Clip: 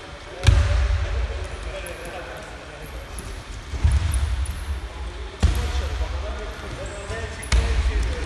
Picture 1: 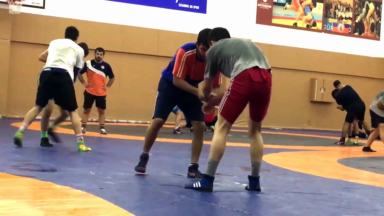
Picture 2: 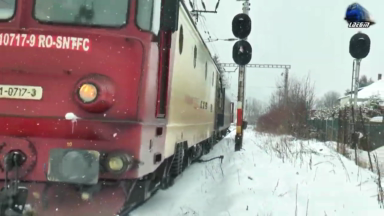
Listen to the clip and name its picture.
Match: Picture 1